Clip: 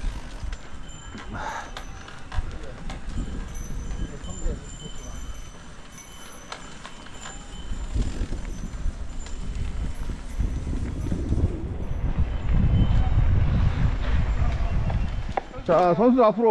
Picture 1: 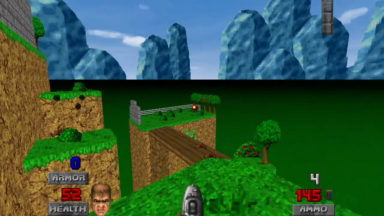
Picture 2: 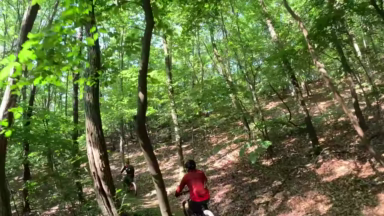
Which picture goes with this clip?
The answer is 2